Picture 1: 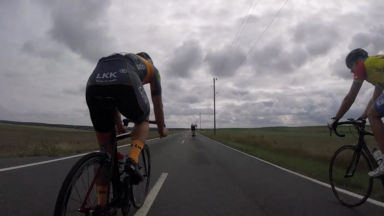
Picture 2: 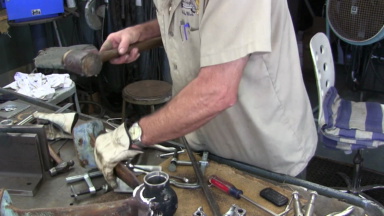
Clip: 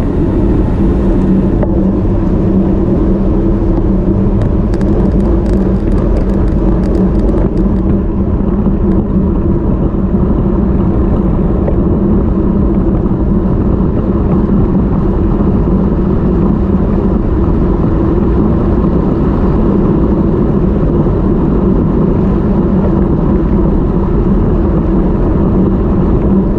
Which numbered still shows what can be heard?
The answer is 1